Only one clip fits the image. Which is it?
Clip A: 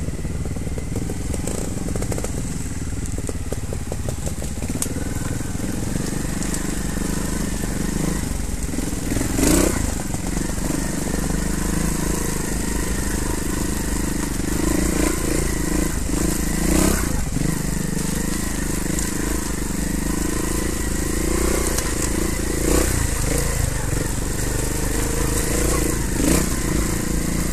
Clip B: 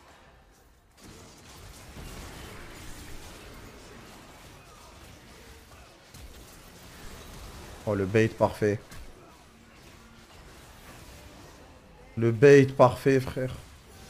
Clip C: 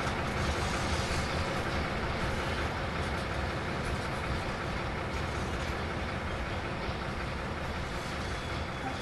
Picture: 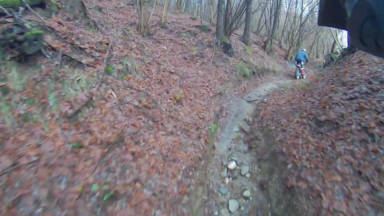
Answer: A